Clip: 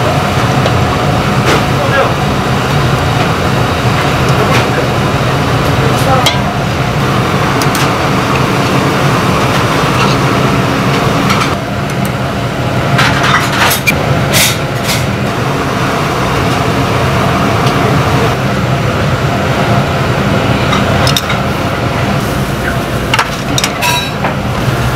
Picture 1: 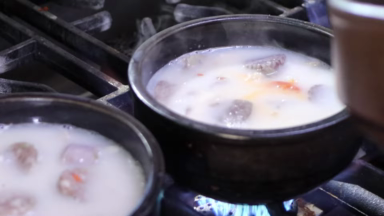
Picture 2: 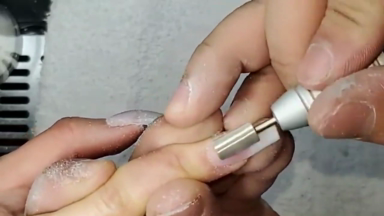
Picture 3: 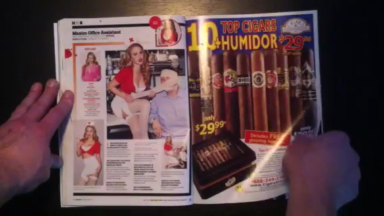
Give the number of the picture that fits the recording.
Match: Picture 1